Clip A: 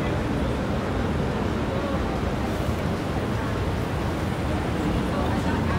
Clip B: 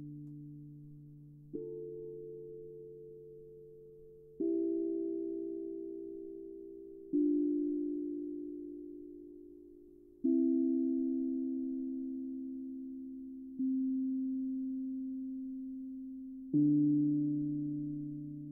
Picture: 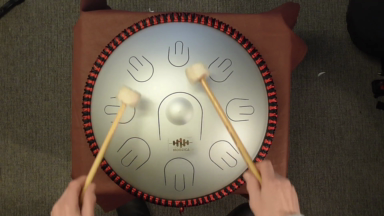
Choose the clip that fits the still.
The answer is B